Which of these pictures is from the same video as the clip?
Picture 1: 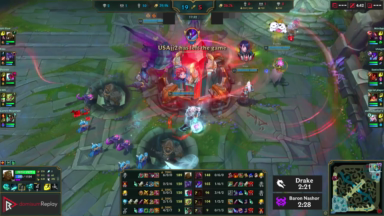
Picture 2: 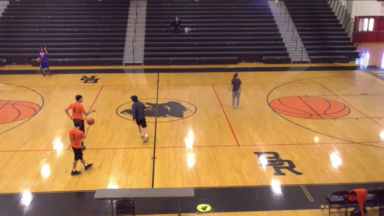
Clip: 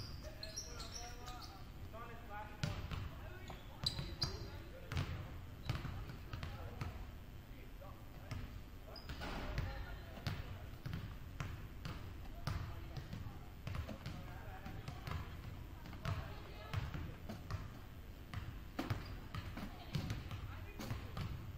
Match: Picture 2